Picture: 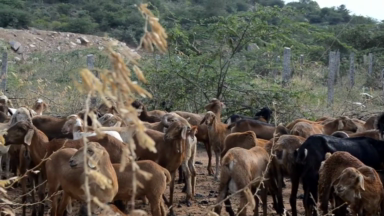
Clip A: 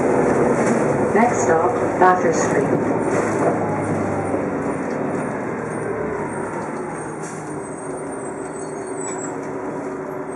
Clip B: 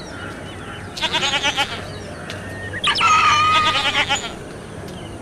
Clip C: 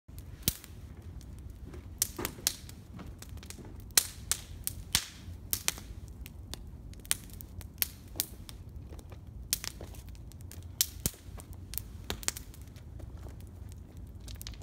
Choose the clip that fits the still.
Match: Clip B